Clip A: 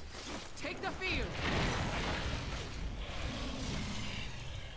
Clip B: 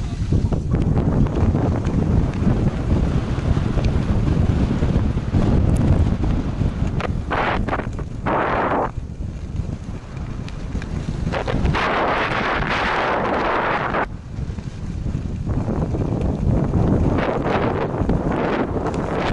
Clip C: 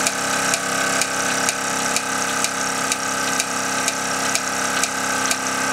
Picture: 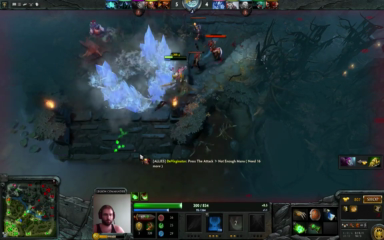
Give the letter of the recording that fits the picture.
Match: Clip A